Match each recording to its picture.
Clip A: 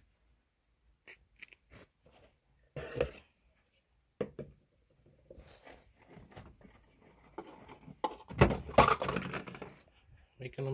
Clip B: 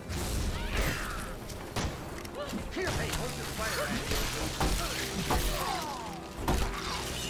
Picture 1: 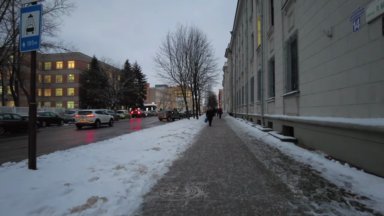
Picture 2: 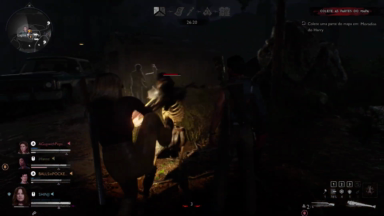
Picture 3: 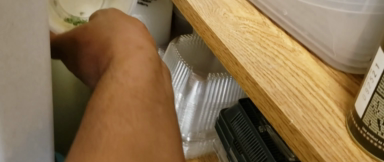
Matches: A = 3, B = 2